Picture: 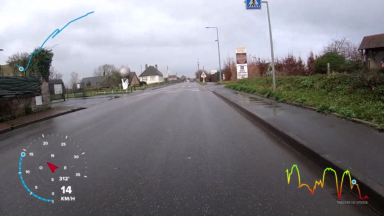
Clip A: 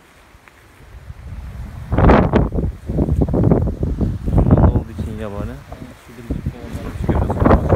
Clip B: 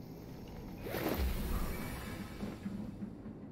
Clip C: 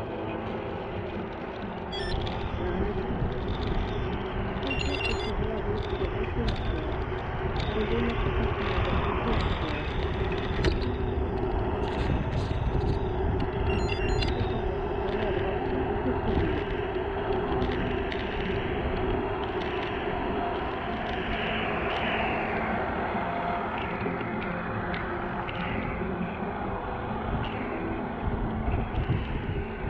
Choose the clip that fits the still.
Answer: C